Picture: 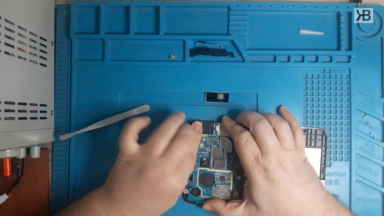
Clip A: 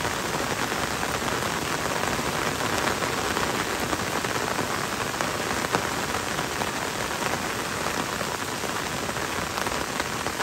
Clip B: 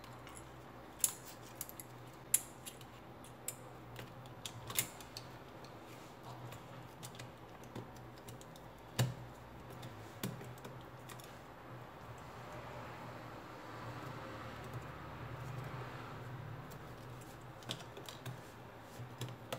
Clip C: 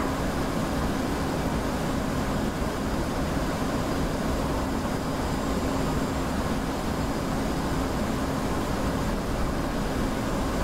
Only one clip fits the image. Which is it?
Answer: B